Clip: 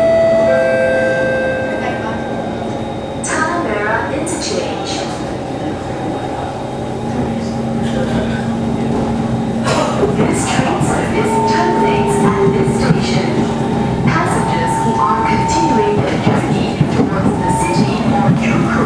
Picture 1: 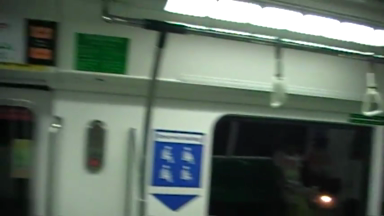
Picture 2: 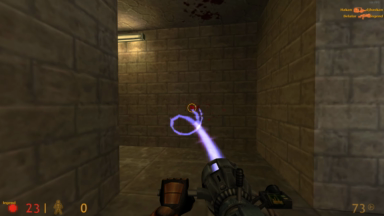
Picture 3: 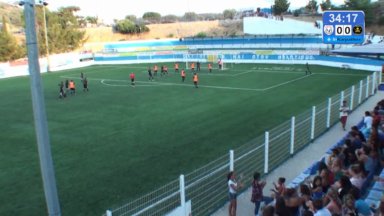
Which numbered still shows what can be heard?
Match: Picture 1